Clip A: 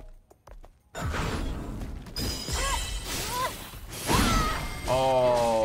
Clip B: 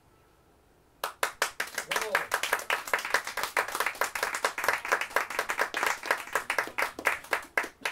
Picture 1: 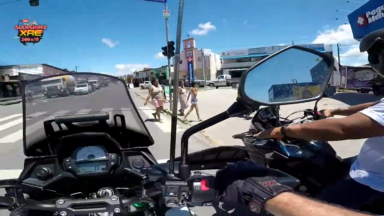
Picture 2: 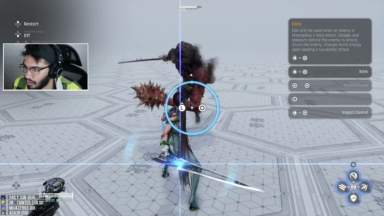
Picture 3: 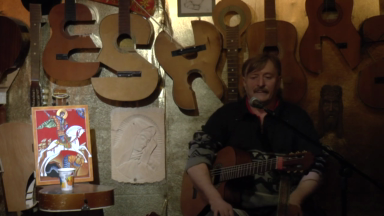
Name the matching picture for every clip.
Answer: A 2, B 3